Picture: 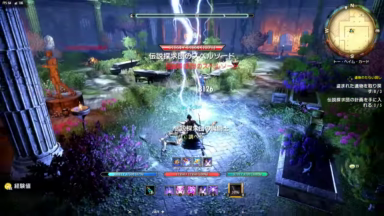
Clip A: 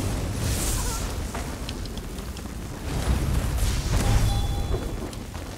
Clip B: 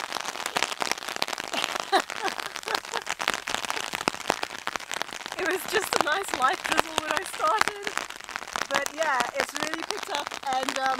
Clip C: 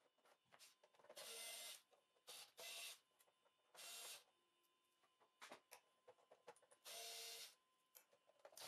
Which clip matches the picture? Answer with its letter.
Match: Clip A